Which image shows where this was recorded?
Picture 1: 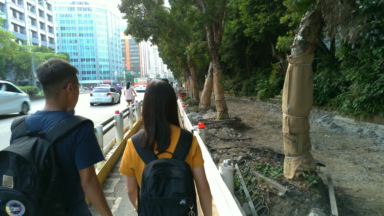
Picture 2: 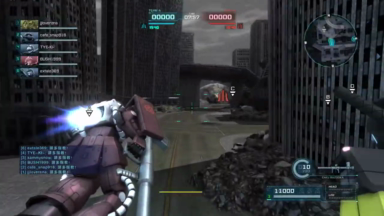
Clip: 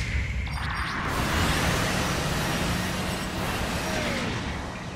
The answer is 2